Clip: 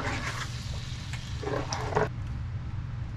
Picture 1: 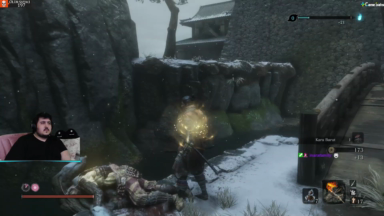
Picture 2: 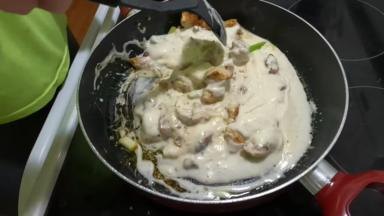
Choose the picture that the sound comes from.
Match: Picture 2